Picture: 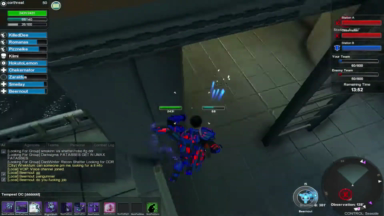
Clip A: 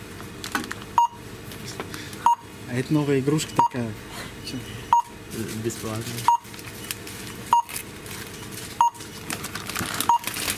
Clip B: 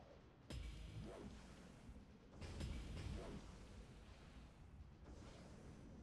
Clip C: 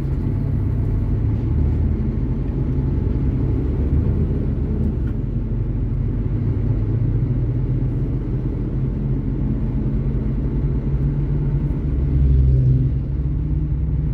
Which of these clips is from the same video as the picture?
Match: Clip B